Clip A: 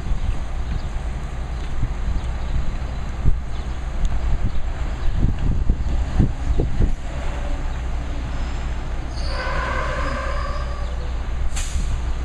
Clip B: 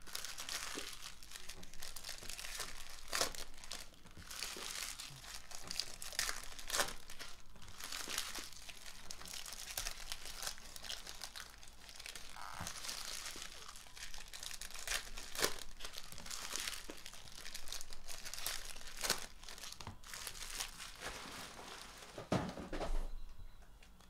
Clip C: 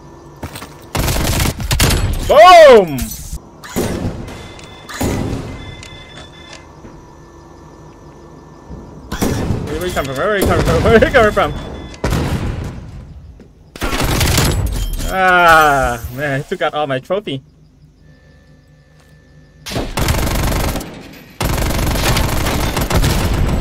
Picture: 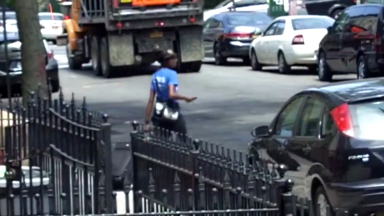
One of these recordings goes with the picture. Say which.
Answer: A